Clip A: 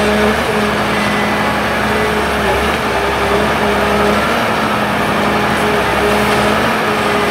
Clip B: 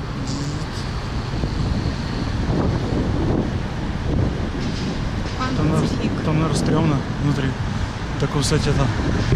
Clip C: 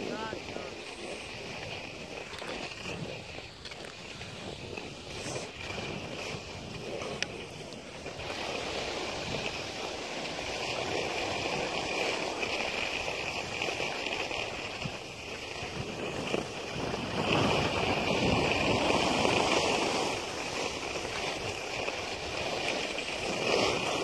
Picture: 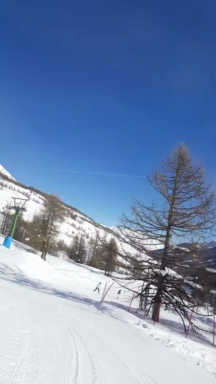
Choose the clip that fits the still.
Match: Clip C